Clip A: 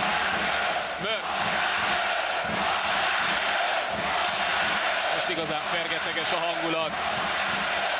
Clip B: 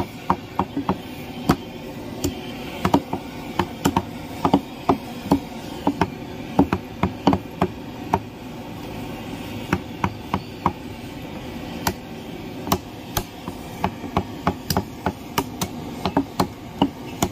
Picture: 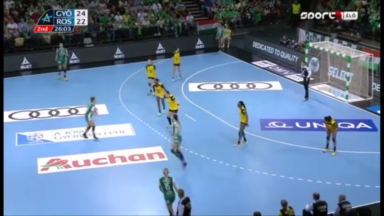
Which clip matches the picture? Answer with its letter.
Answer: A